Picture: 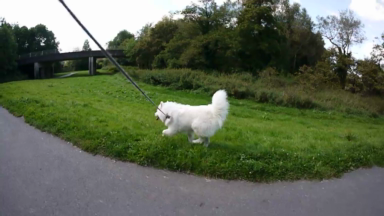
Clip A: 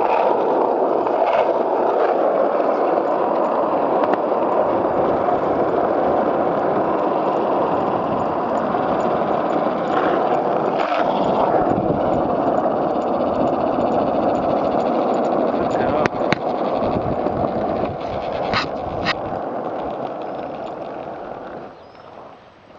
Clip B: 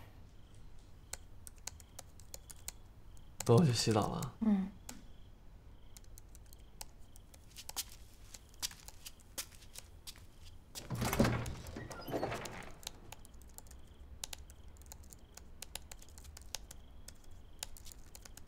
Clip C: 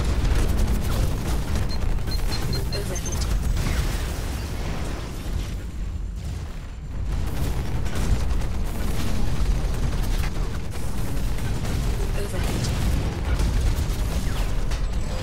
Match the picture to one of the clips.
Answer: A